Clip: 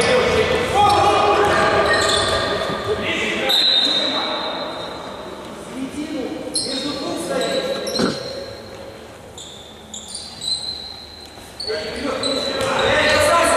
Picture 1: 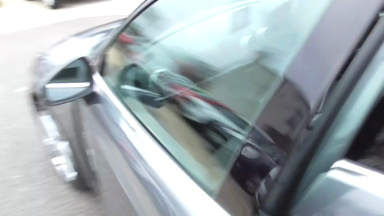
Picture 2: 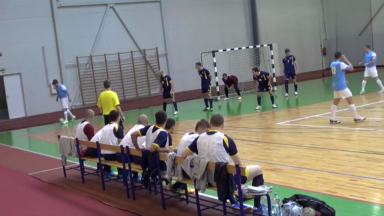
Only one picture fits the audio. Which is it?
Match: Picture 2